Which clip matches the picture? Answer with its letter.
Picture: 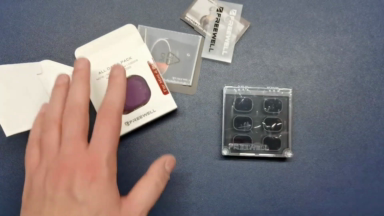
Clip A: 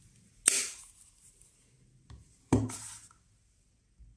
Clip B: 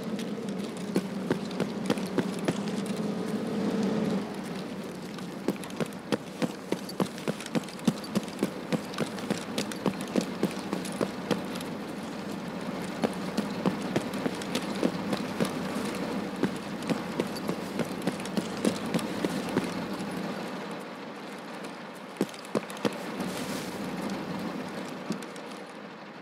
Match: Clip A